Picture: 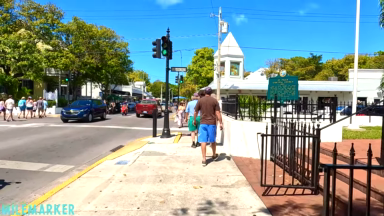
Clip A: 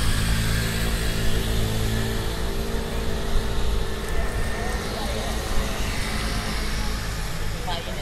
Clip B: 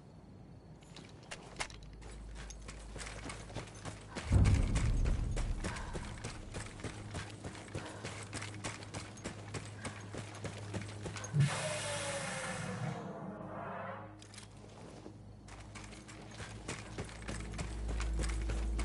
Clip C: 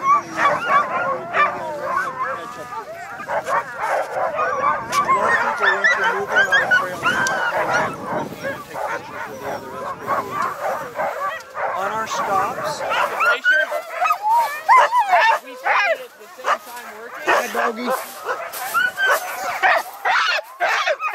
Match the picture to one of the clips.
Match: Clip A